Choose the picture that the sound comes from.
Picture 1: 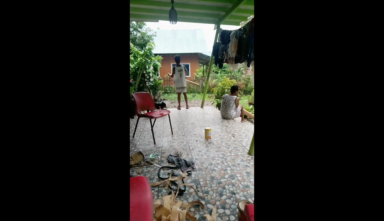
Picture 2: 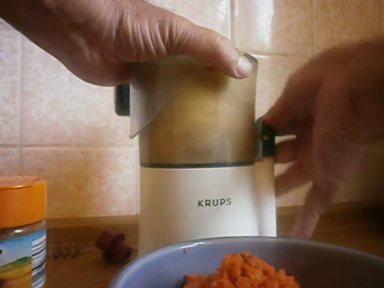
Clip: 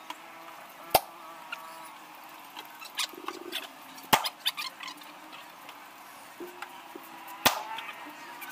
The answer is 1